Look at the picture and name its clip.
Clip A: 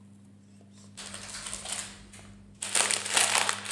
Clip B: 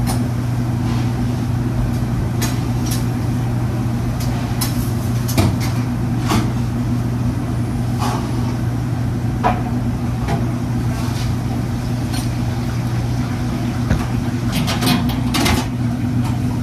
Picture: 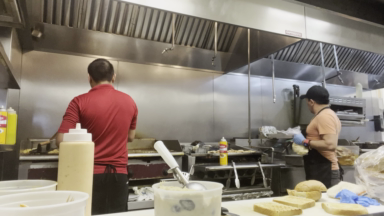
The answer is B